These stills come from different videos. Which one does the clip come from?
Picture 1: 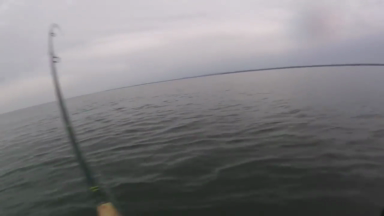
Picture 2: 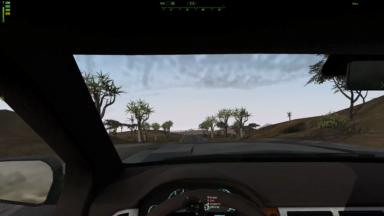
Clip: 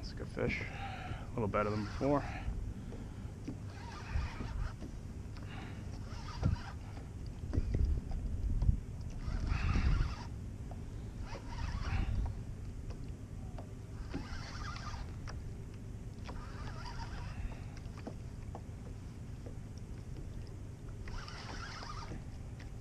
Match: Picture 1